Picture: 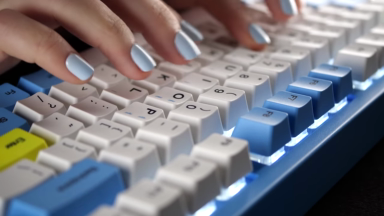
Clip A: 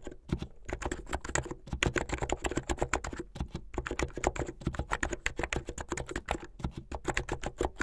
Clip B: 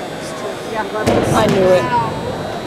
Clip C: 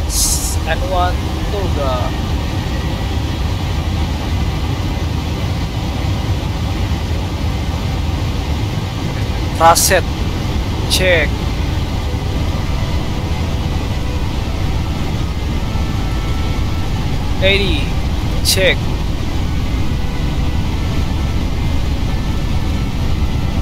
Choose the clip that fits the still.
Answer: A